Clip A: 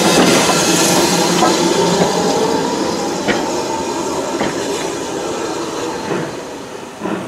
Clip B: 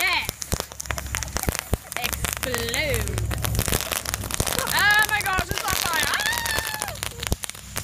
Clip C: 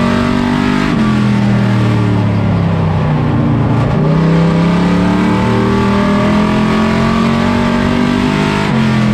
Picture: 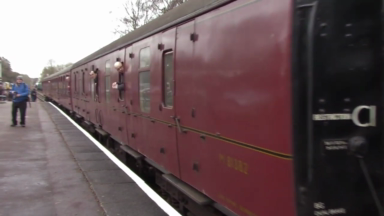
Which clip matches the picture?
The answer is A